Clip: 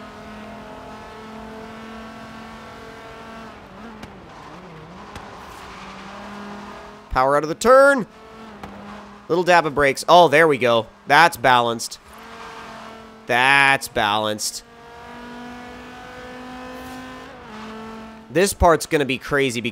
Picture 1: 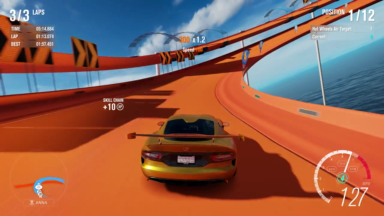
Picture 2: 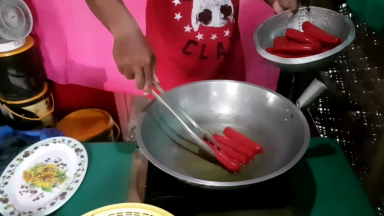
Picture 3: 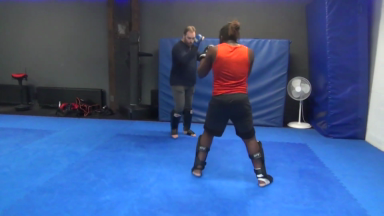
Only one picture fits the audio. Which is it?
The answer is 1